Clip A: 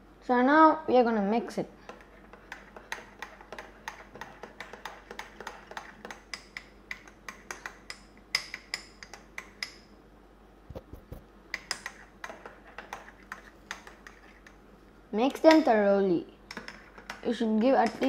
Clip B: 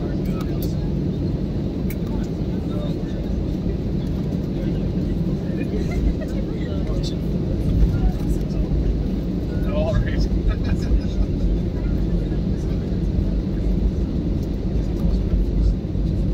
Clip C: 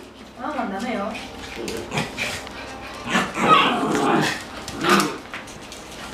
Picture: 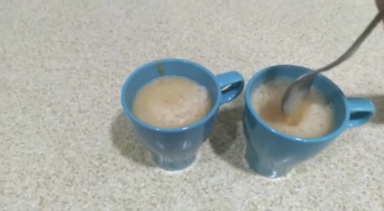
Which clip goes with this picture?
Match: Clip A